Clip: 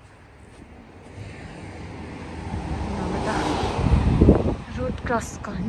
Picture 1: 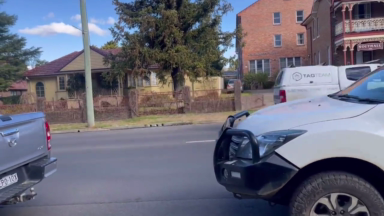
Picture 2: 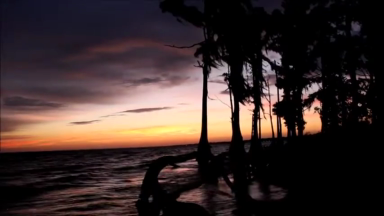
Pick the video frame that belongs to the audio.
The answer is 1